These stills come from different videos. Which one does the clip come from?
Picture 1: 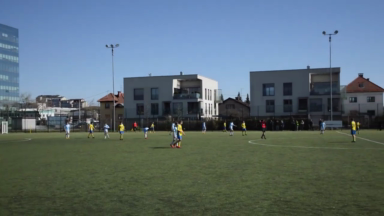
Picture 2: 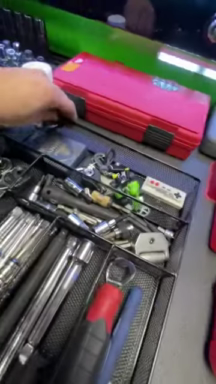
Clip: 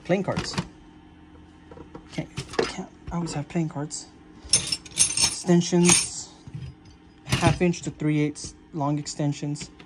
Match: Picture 2